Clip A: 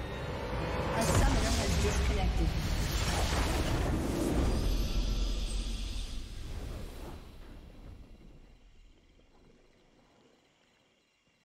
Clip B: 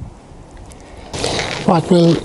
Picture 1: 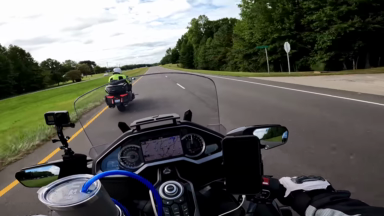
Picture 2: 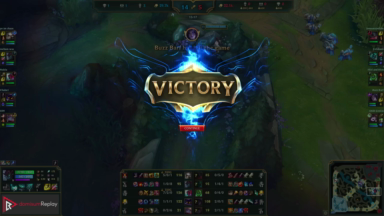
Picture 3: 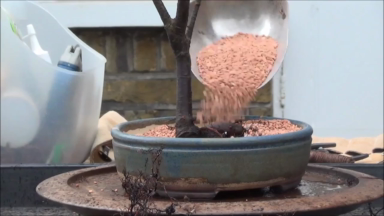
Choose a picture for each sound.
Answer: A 2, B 3